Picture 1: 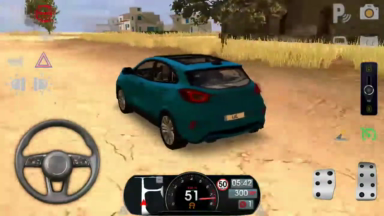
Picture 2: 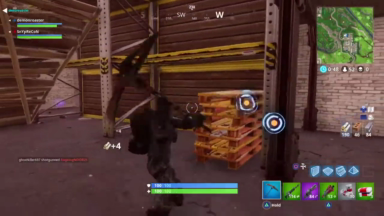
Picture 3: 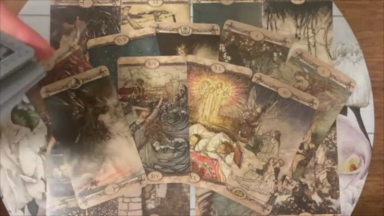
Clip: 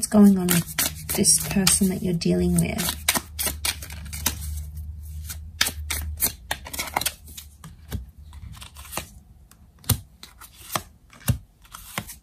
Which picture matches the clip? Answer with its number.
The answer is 3